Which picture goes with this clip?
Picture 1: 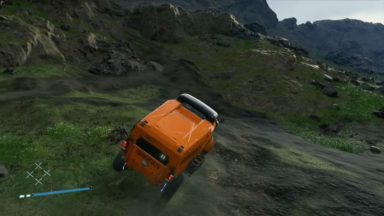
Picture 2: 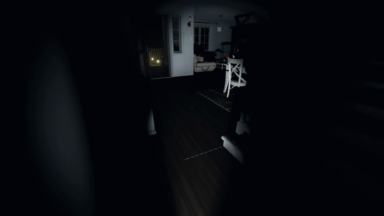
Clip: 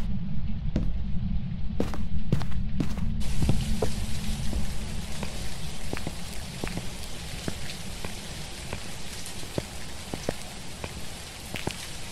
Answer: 2